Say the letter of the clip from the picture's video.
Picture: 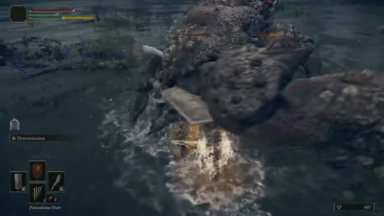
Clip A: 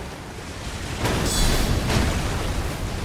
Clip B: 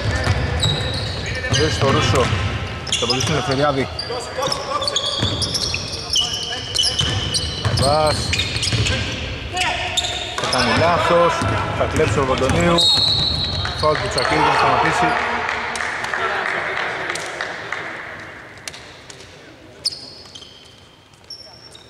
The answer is A